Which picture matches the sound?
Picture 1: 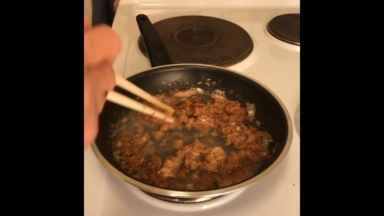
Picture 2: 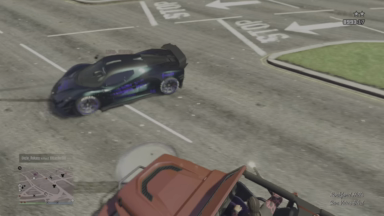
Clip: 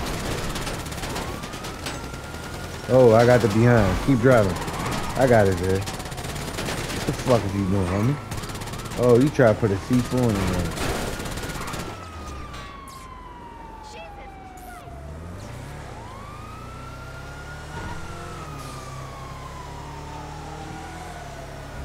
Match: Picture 2